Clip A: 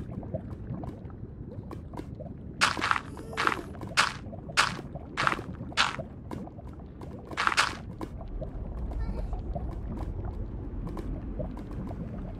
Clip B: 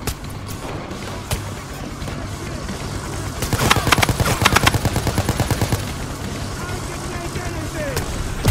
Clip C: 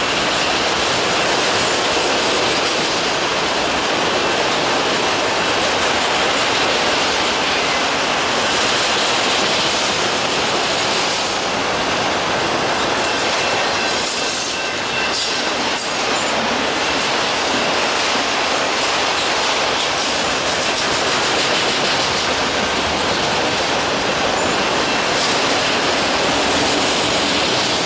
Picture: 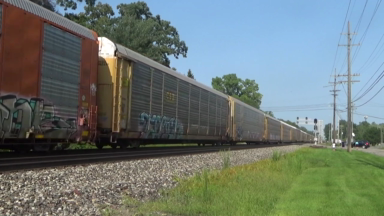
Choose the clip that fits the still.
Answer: C